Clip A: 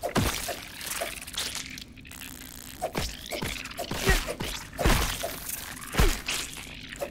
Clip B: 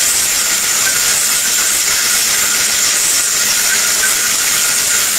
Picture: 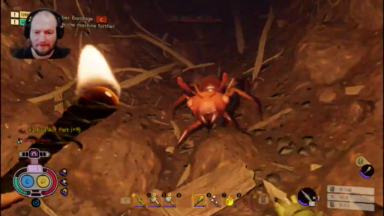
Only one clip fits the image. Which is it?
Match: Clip A